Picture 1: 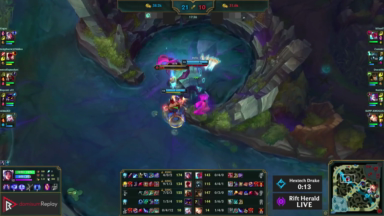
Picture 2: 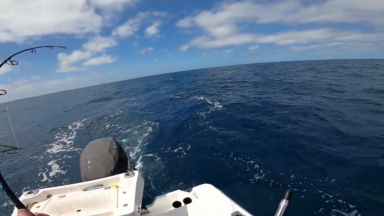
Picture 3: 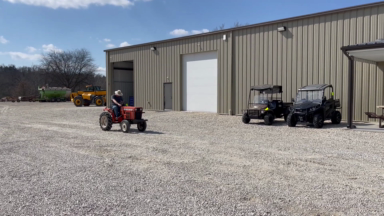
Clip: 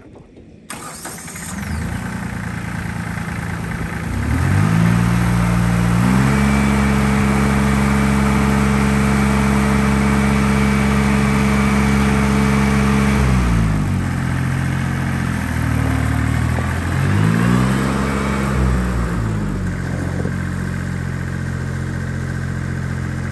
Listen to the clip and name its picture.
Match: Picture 3